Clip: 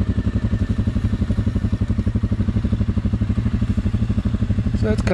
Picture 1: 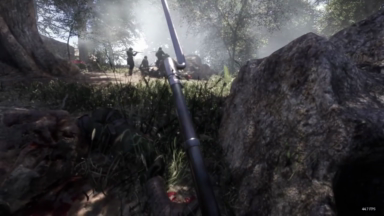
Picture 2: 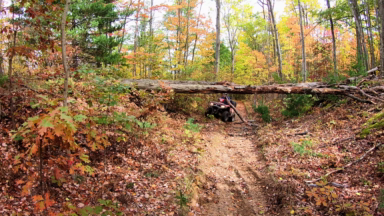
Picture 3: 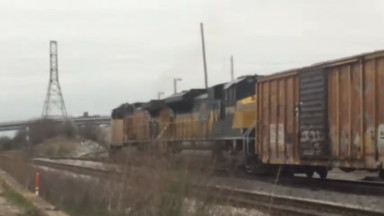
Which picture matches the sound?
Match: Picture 2